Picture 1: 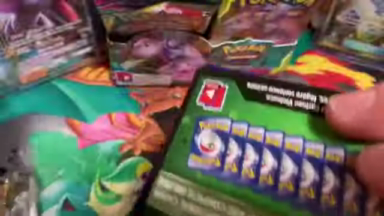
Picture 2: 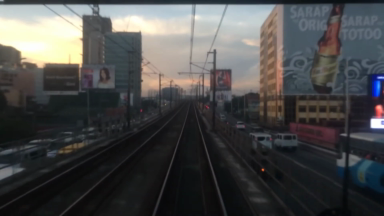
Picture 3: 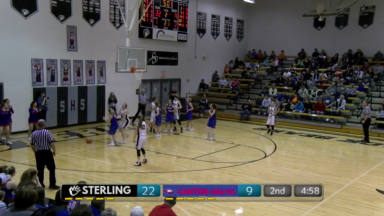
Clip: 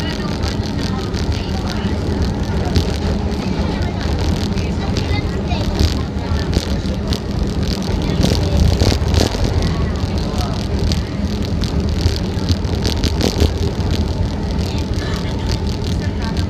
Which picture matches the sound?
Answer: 2